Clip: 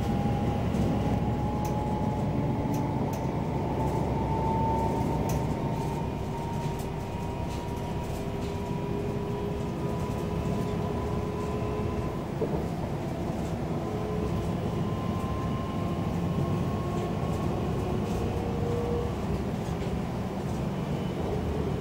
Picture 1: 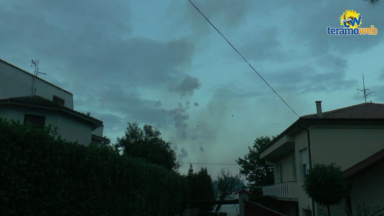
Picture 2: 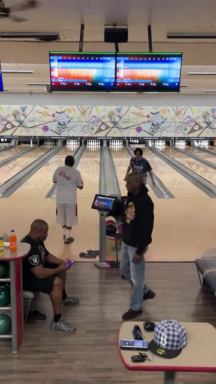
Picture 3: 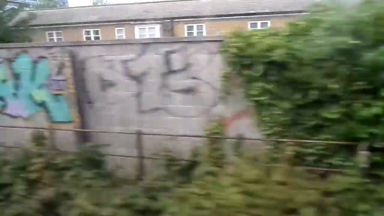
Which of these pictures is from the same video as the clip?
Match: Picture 3